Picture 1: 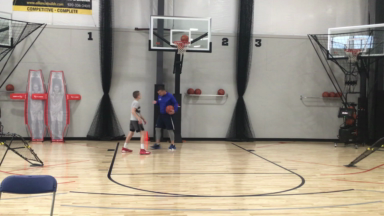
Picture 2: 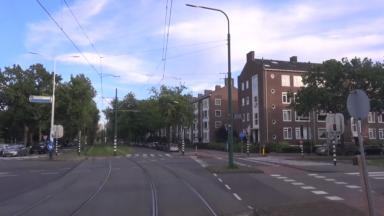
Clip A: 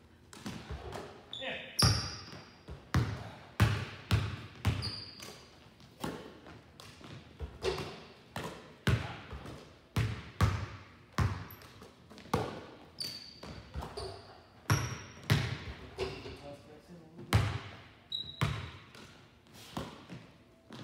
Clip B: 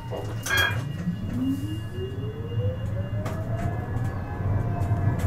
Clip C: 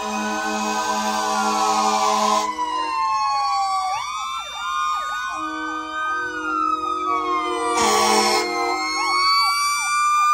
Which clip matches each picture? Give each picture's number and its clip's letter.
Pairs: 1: A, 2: B